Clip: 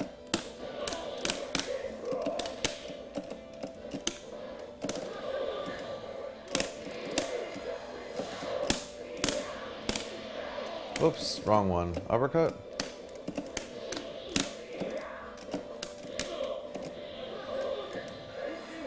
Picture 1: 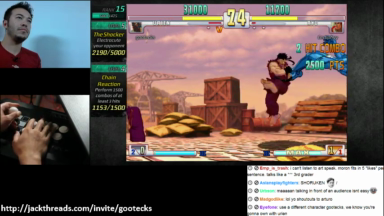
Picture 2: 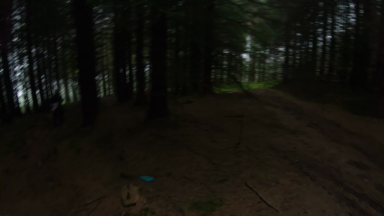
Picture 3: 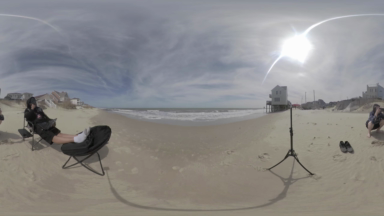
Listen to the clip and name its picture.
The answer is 1